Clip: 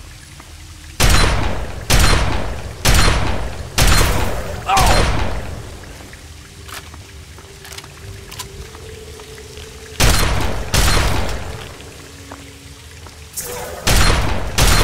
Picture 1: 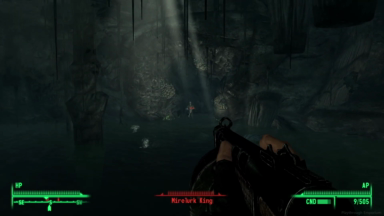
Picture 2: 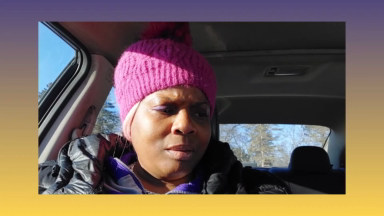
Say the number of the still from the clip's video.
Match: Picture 1